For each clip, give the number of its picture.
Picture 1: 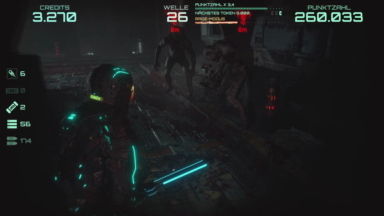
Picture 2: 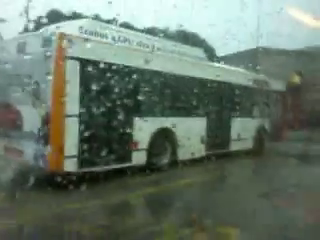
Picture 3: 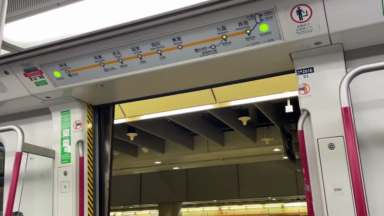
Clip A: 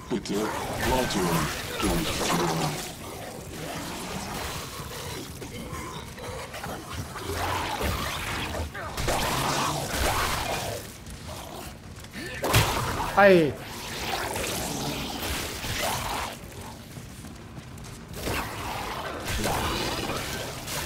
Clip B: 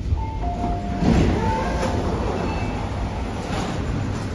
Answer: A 1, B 3